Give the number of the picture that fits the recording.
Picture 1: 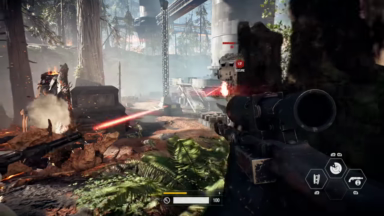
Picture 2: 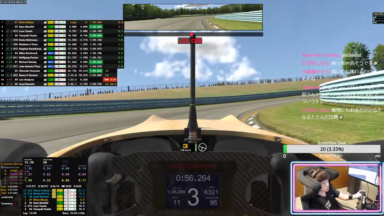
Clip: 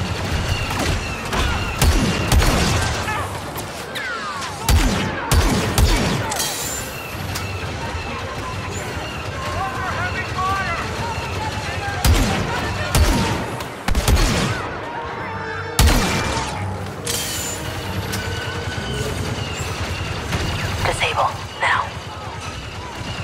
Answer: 1